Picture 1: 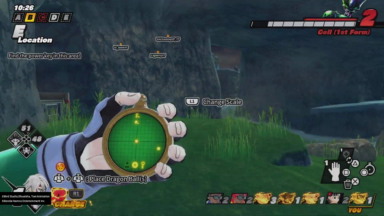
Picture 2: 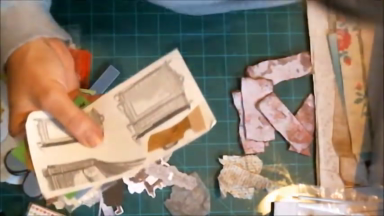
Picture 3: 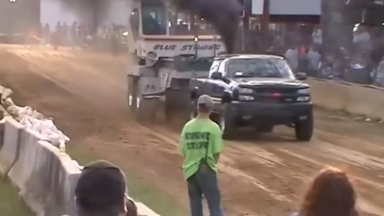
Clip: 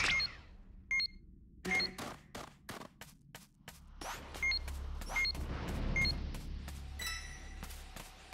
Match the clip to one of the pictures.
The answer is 1